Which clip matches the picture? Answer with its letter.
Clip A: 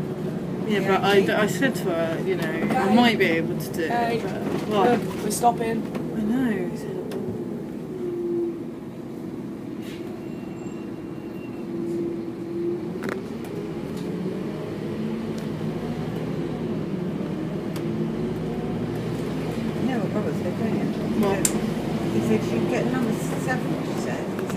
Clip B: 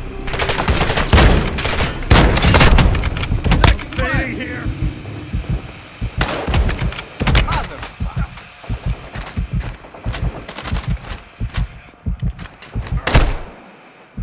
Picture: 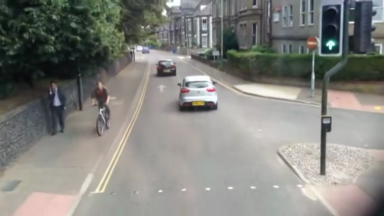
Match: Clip A